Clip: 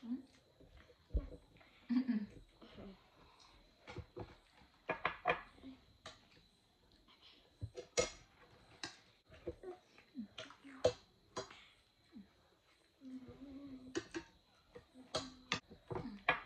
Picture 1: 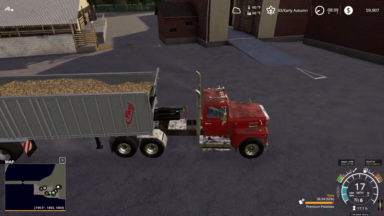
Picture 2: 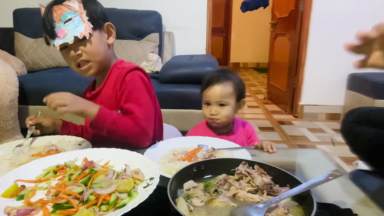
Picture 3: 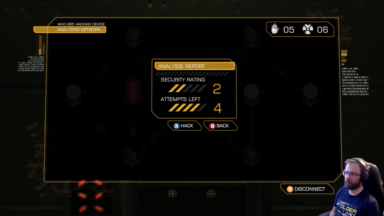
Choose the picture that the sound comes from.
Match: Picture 2